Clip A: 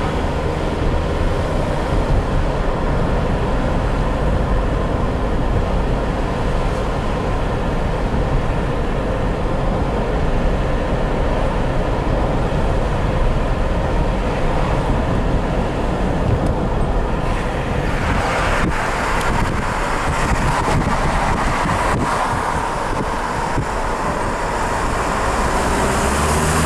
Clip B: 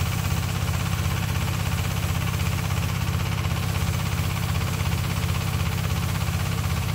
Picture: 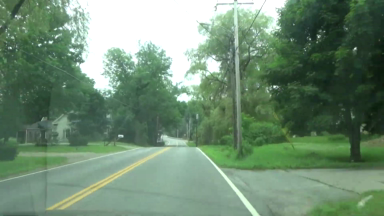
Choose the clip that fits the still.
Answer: A